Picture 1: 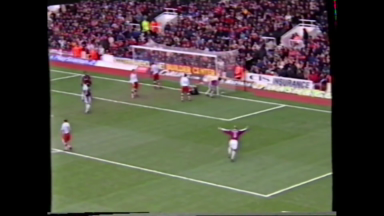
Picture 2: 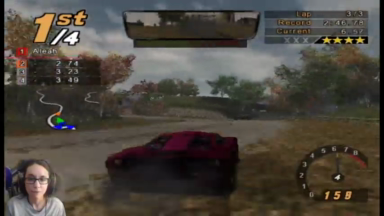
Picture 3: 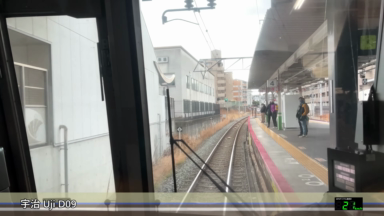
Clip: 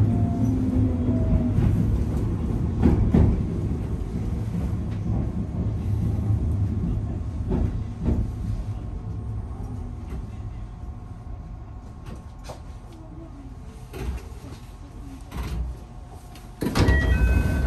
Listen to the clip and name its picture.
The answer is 3